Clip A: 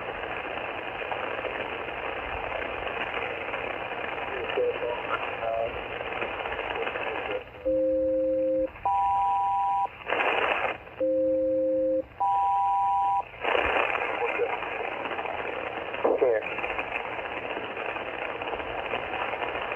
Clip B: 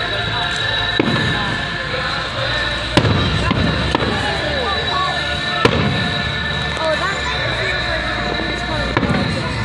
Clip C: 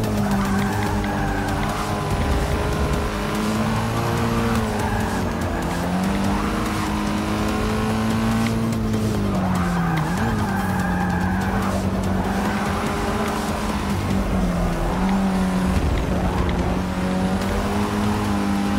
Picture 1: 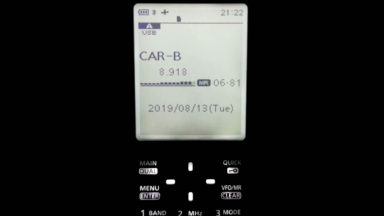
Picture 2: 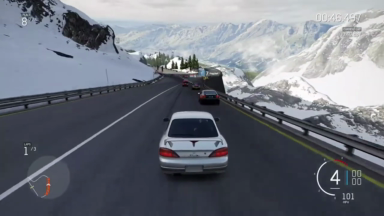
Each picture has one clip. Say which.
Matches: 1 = A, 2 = C